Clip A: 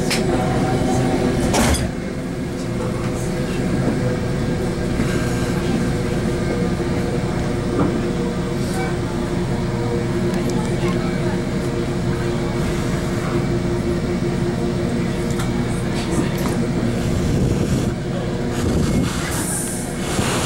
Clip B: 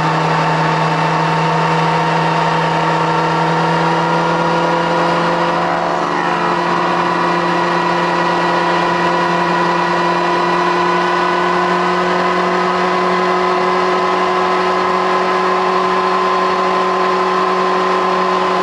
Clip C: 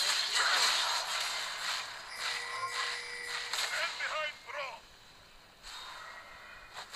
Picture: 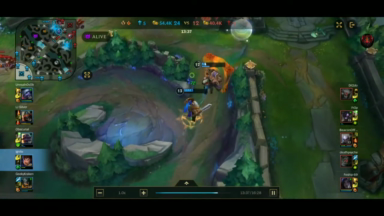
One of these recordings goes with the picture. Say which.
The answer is C